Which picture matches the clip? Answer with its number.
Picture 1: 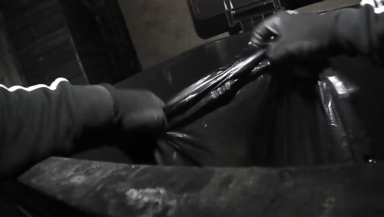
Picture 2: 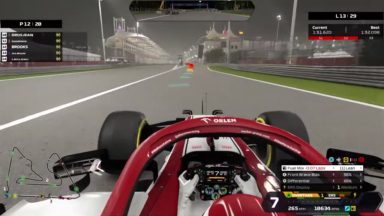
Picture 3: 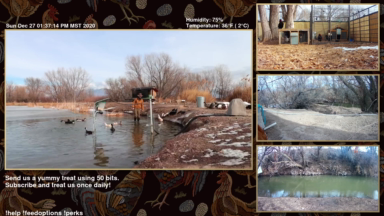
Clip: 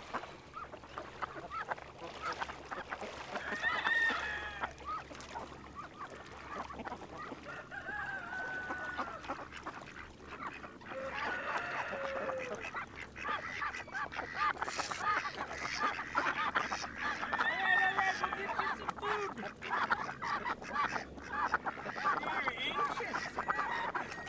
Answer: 3